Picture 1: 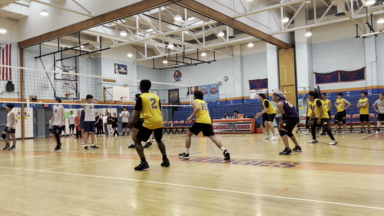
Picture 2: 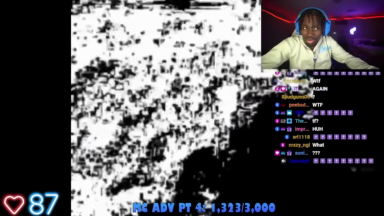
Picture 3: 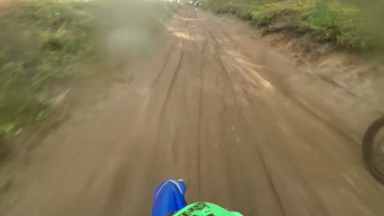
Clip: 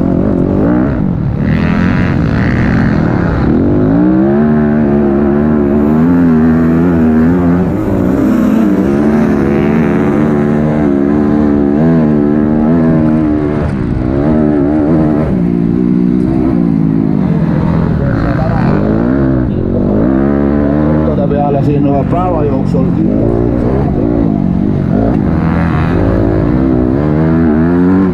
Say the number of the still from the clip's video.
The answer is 3